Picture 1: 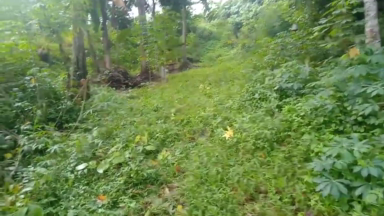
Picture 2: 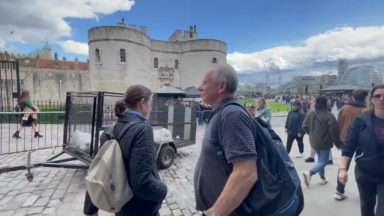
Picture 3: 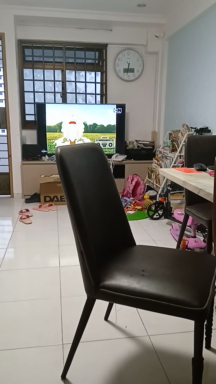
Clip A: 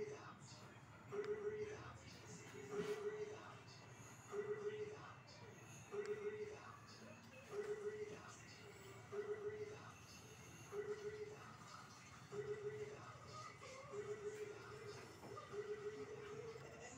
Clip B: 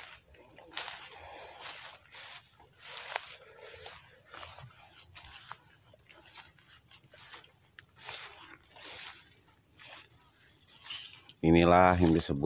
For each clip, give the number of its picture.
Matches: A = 3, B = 1